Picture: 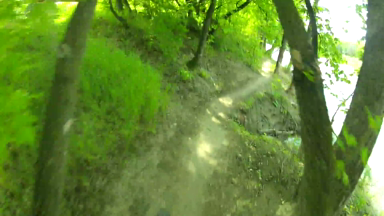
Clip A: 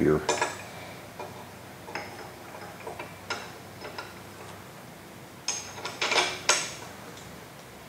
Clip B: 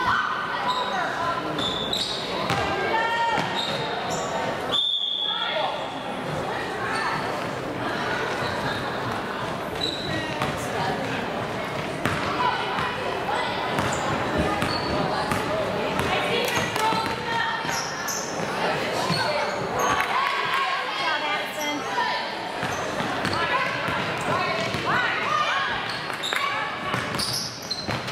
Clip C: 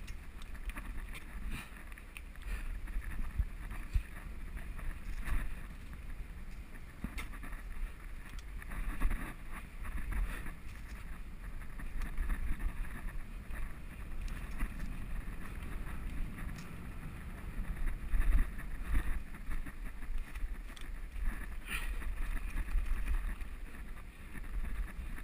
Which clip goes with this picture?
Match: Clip C